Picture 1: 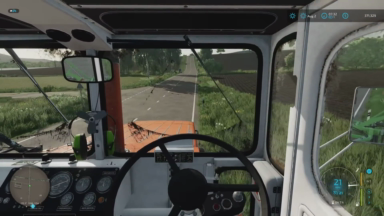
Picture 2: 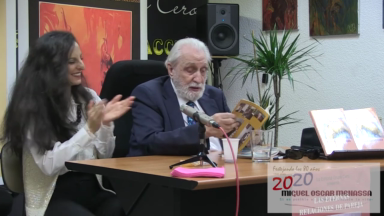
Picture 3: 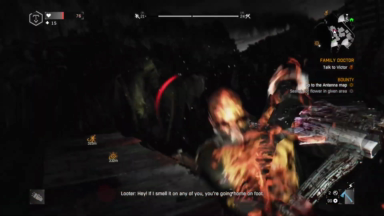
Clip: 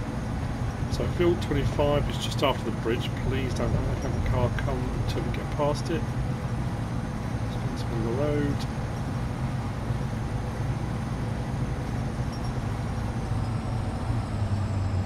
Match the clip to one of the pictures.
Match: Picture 1